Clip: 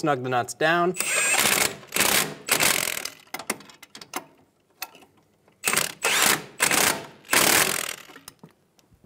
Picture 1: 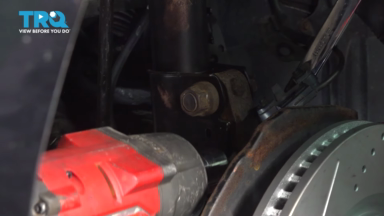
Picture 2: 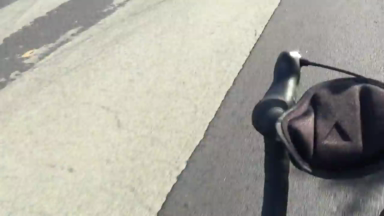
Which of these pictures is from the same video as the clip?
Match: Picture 1